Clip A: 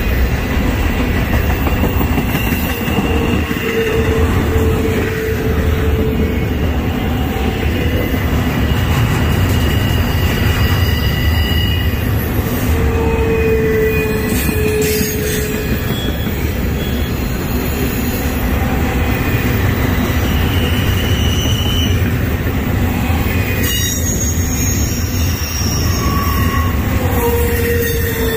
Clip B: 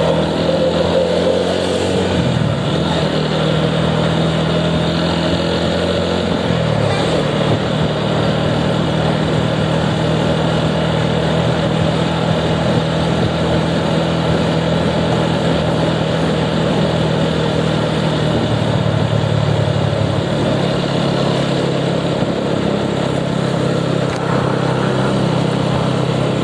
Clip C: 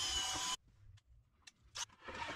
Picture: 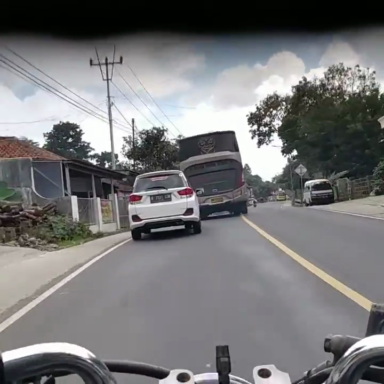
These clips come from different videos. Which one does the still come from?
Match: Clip B